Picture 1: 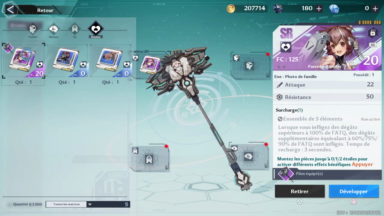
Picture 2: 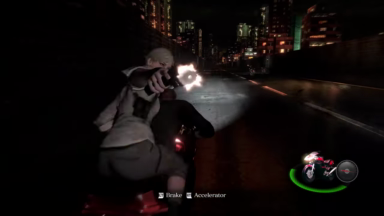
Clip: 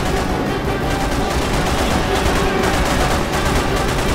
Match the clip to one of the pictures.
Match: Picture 2